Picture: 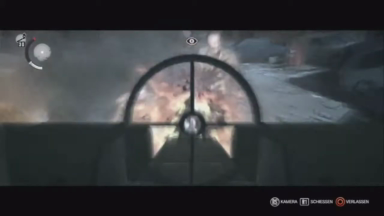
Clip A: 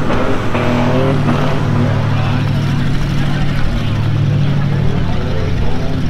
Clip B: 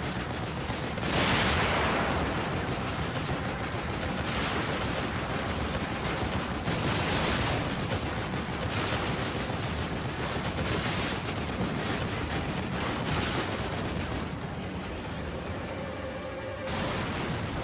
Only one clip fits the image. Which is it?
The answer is B